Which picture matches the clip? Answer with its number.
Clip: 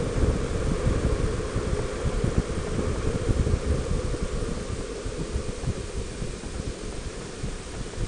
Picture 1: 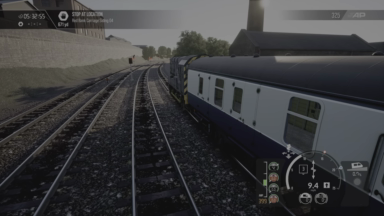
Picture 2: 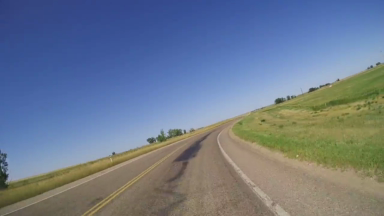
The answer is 2